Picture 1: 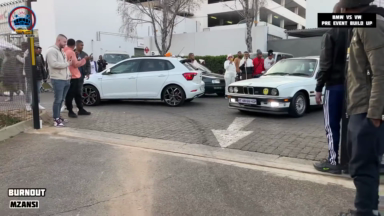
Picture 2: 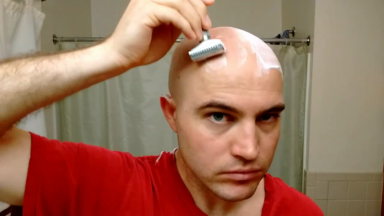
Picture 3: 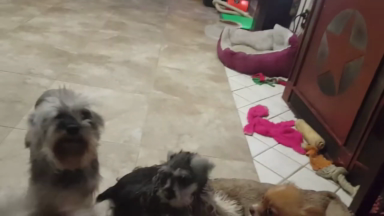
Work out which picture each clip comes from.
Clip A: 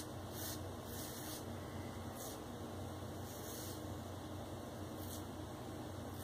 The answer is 2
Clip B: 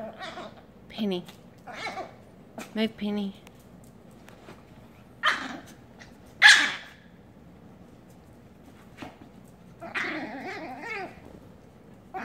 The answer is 3